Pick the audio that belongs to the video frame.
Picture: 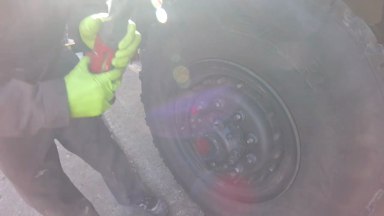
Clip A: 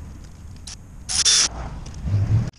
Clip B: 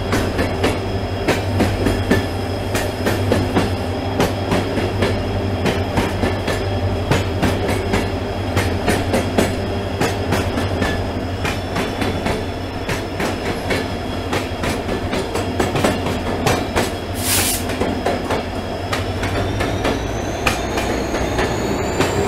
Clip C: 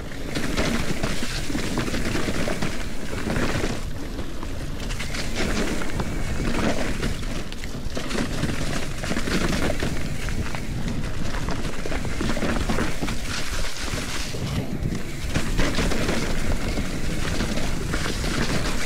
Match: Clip A